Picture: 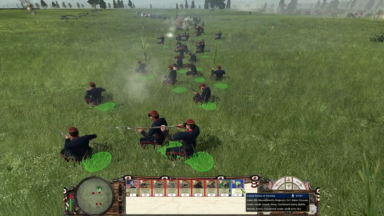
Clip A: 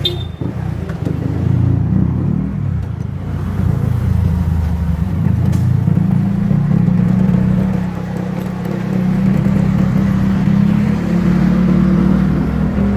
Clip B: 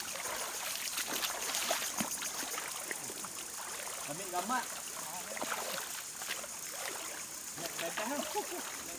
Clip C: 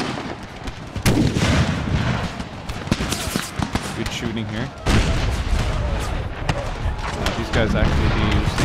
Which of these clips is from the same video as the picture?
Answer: C